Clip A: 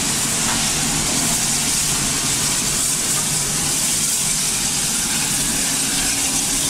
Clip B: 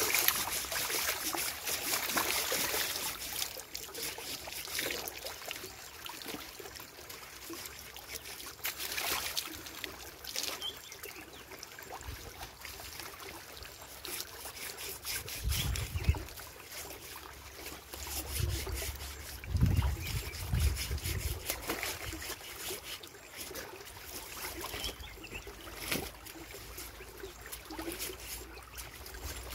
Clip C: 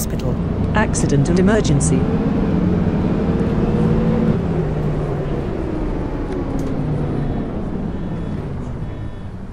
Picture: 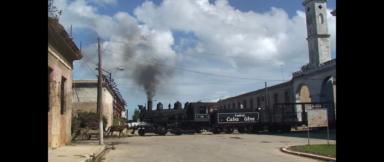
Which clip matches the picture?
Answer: A